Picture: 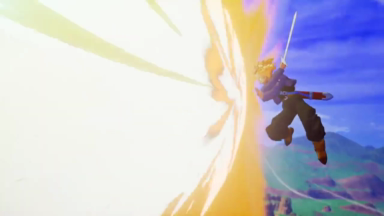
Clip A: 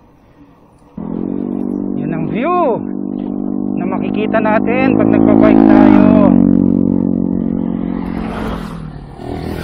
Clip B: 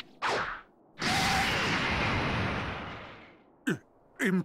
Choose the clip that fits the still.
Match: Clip B